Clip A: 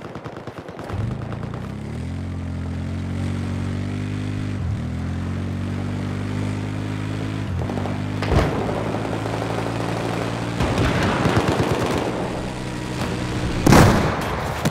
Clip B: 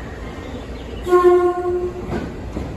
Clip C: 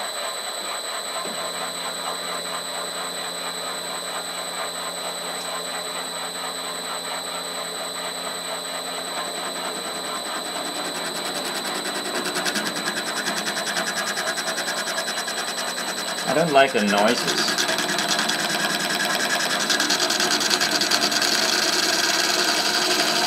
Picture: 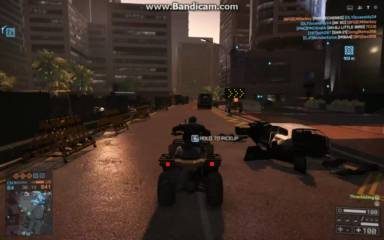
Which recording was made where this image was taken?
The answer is A